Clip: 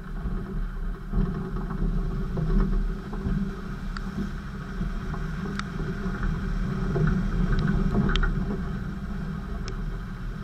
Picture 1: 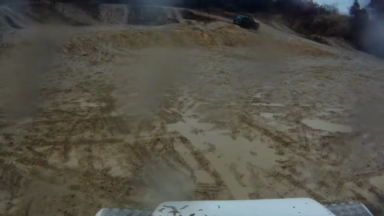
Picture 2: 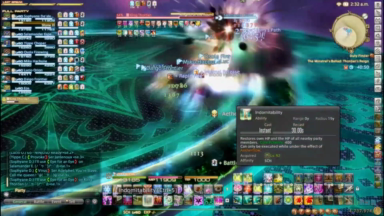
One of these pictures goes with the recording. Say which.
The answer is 1